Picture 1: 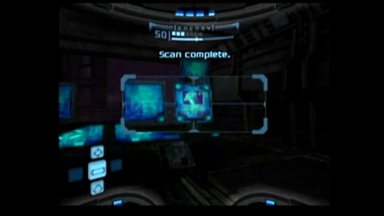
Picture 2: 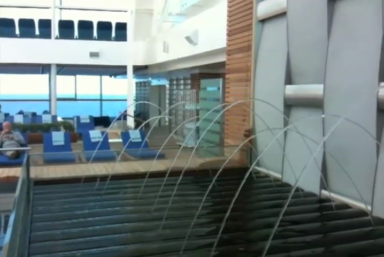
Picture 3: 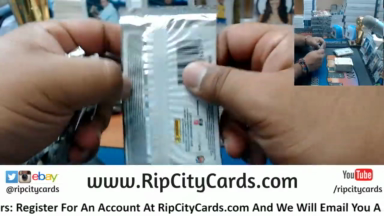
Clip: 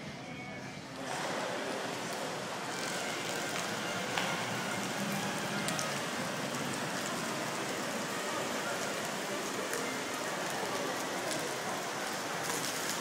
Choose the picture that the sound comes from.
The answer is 2